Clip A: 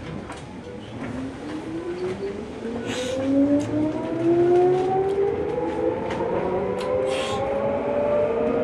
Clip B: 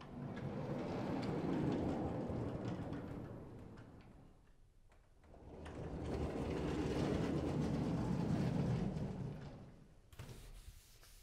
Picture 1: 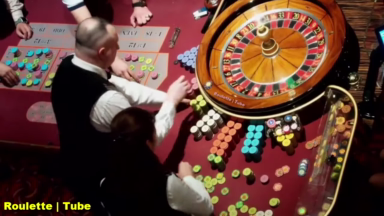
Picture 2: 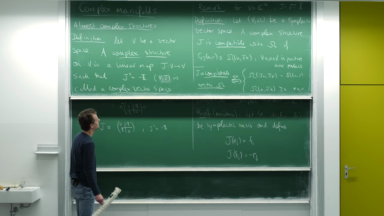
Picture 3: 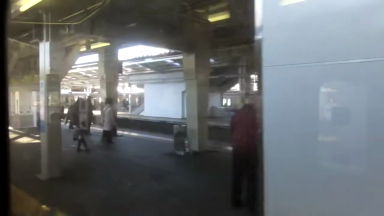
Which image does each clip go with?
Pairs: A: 3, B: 2